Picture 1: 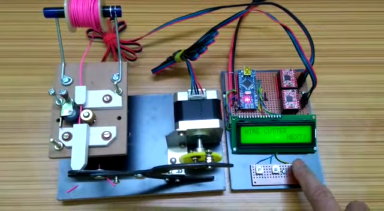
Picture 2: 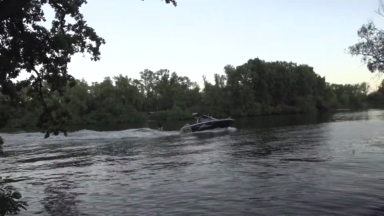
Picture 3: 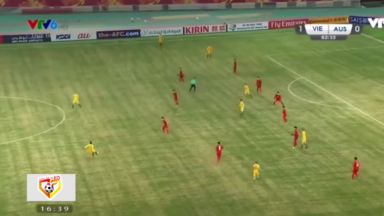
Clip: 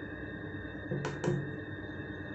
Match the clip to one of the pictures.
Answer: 1